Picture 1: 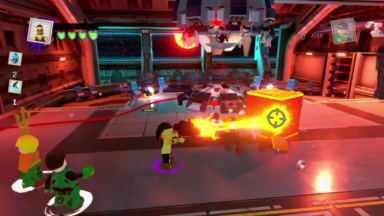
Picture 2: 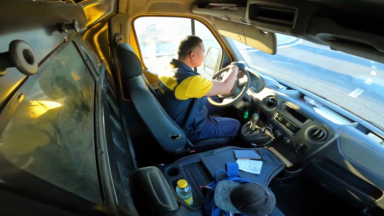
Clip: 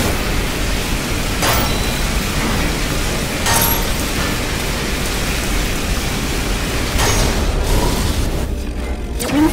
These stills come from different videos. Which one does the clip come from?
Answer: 1